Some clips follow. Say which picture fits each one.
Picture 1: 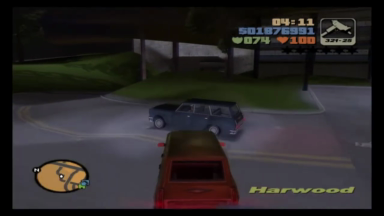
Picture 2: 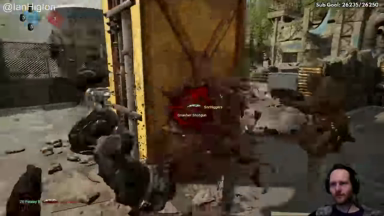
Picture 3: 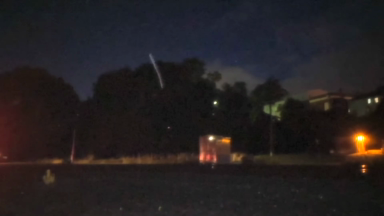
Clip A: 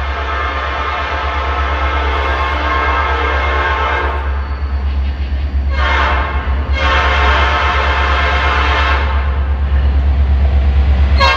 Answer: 3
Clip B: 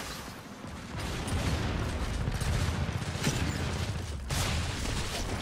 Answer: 2